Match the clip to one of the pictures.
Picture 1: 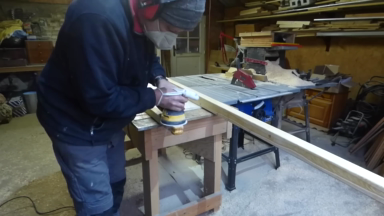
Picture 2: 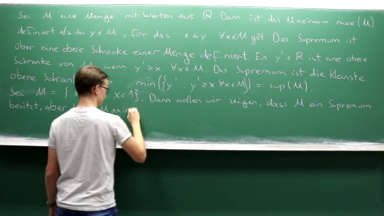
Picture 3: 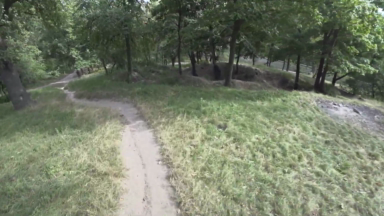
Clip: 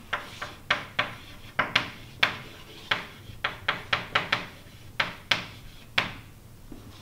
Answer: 2